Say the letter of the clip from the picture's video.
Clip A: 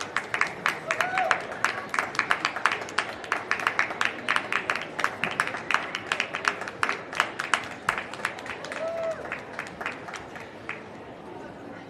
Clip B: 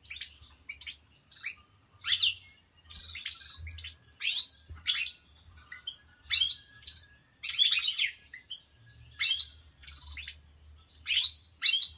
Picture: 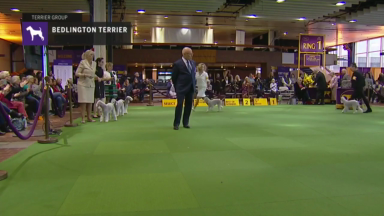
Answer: A